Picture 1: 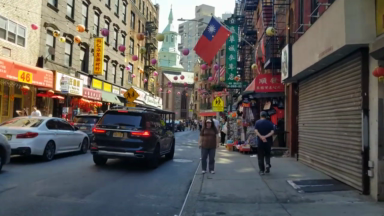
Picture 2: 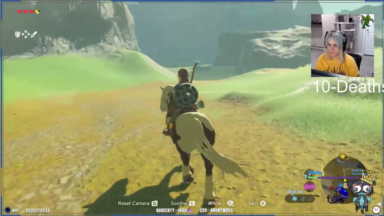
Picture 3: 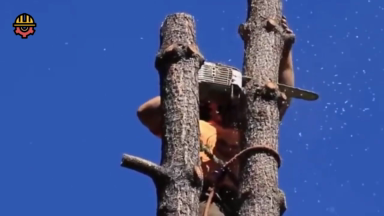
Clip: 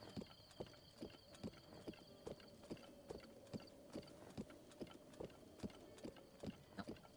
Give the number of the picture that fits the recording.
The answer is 2